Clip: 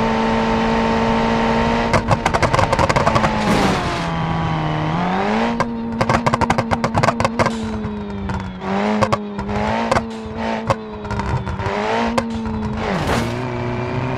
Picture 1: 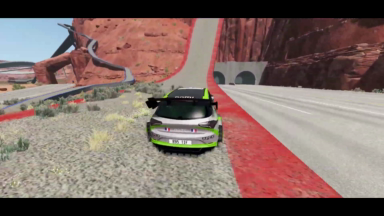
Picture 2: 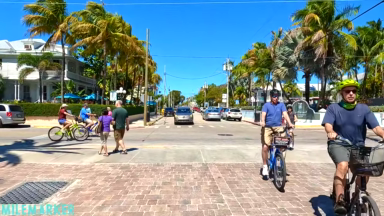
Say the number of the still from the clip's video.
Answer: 1